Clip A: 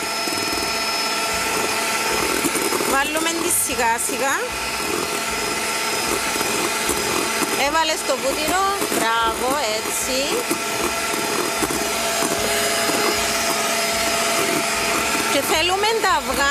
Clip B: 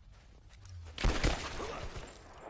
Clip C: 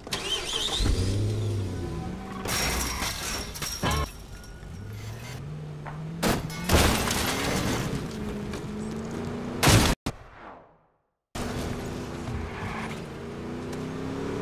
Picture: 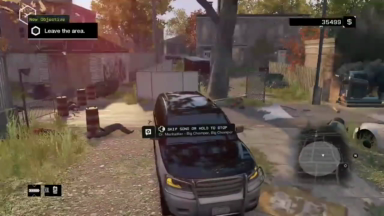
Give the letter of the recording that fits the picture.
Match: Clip C